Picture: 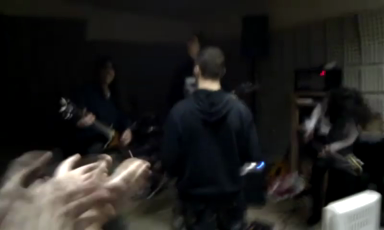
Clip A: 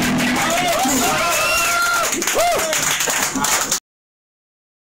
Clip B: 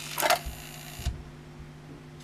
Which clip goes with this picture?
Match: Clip A